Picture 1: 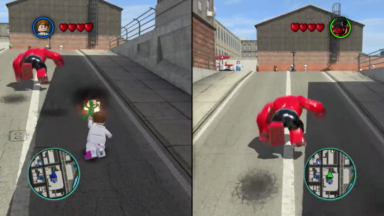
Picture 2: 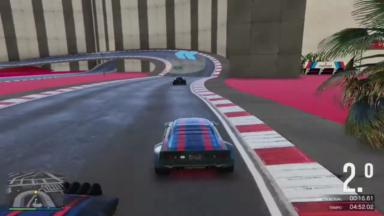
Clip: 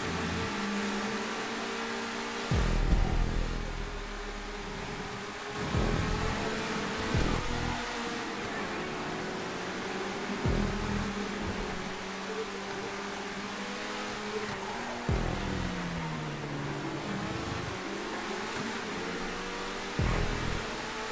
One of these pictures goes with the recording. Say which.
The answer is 2